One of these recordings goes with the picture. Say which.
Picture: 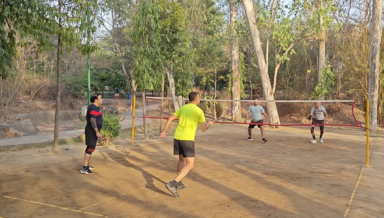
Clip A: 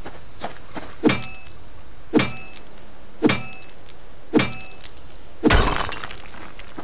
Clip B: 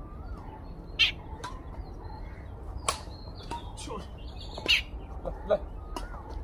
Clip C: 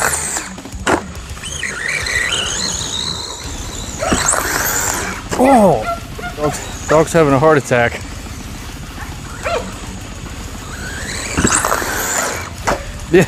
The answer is B